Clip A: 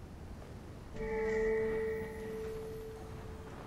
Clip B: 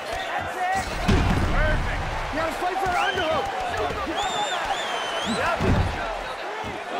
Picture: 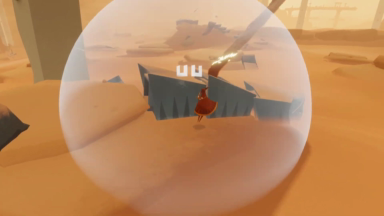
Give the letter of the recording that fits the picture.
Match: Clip A